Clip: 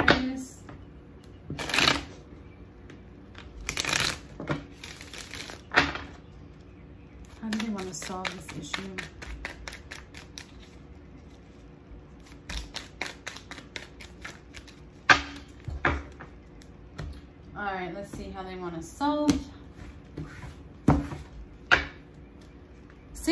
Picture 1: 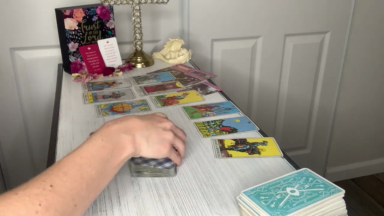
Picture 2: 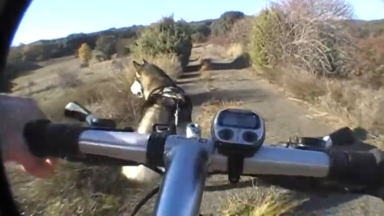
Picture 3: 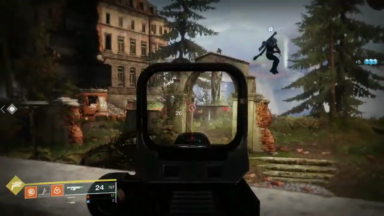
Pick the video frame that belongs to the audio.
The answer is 1